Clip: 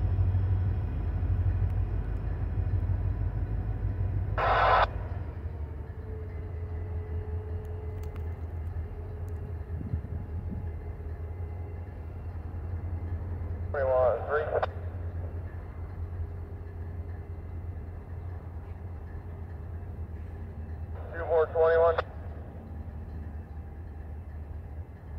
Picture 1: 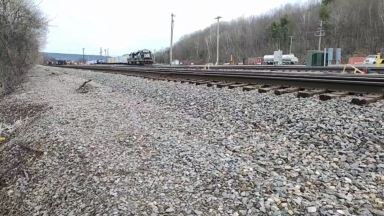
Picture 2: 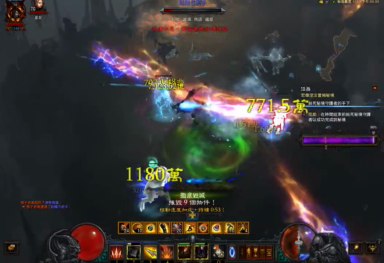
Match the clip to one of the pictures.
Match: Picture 1